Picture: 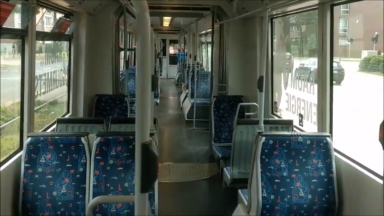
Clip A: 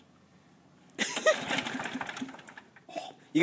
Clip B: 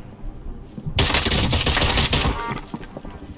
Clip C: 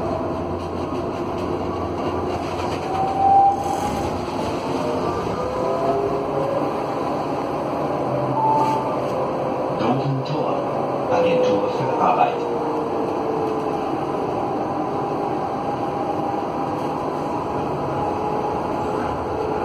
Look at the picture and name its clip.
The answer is C